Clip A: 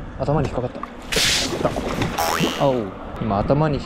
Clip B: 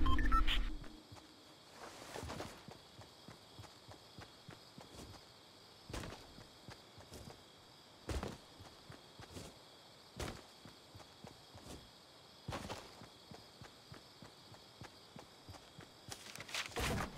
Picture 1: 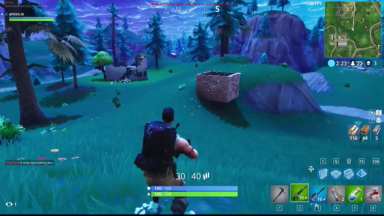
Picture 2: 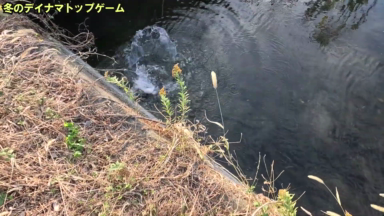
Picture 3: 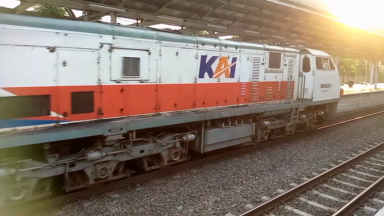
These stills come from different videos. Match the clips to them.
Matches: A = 2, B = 1